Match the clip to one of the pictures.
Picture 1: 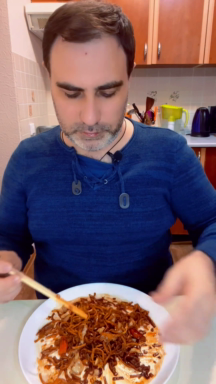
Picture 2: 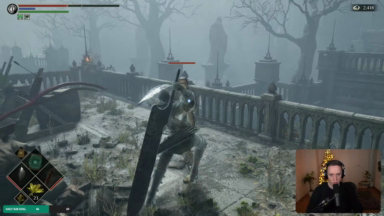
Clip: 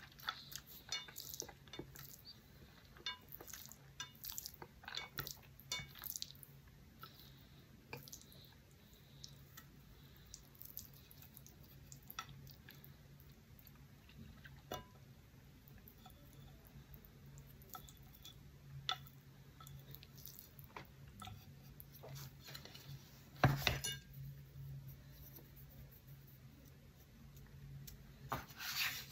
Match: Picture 1